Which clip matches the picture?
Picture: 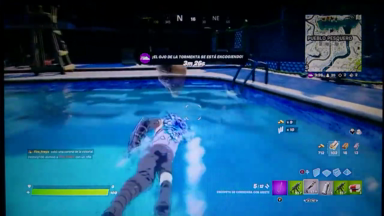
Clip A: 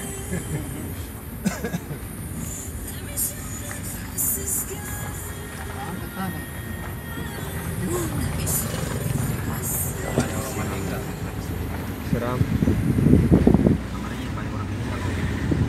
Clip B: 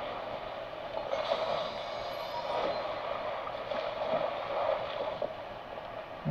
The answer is B